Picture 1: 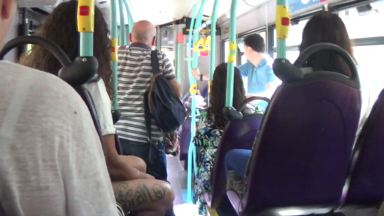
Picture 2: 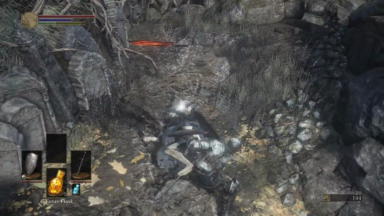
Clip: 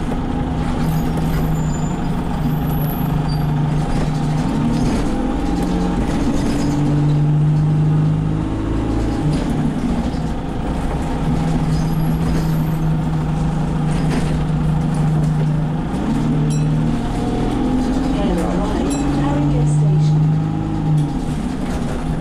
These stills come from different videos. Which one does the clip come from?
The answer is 1